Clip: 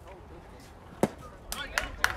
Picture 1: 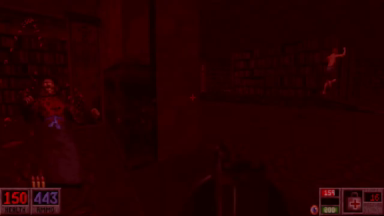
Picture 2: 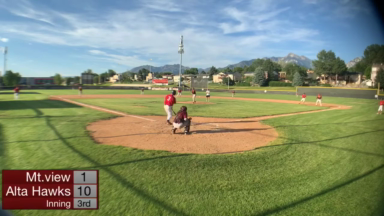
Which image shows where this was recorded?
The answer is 2